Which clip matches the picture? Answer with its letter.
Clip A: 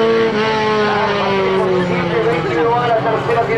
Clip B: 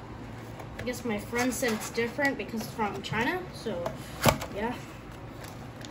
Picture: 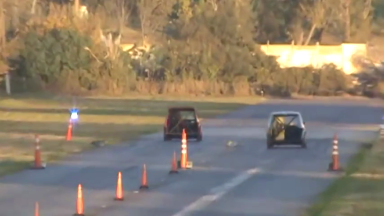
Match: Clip A